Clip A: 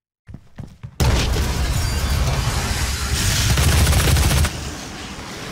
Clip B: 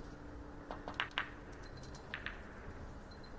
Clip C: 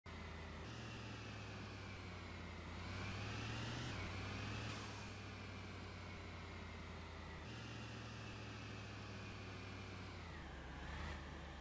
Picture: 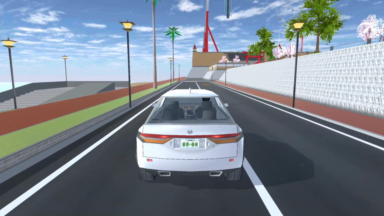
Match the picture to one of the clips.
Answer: C